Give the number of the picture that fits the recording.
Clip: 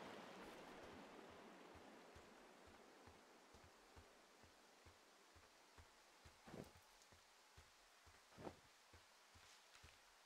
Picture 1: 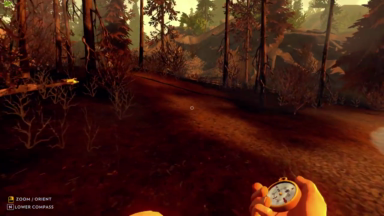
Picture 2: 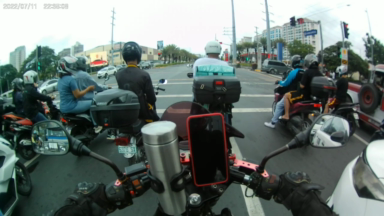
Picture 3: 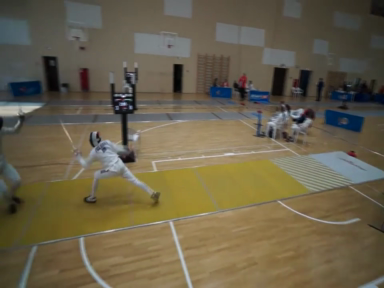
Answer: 1